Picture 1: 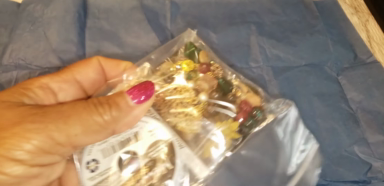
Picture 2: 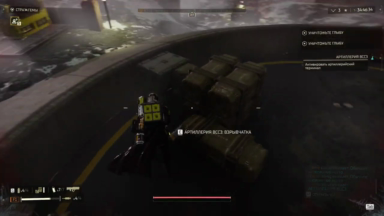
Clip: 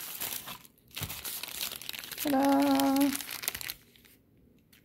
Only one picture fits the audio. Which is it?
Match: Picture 1